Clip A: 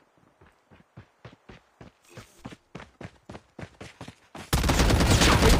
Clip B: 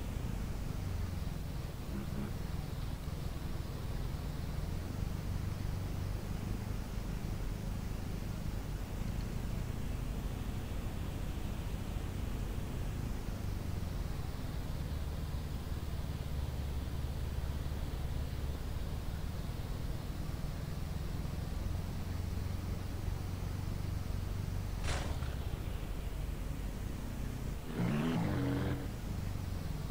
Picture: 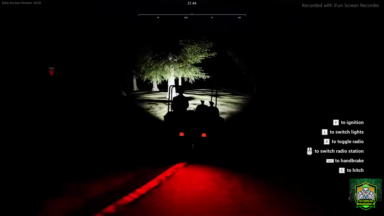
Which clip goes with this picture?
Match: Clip B